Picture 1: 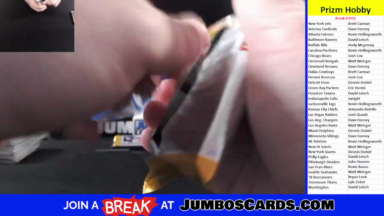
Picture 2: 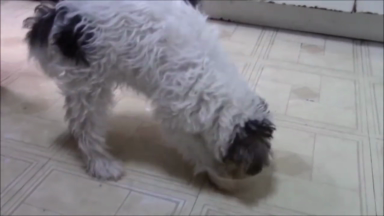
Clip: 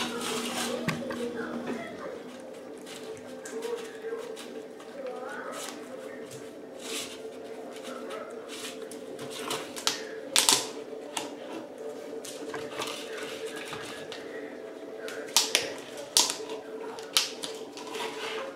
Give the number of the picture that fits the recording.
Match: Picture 2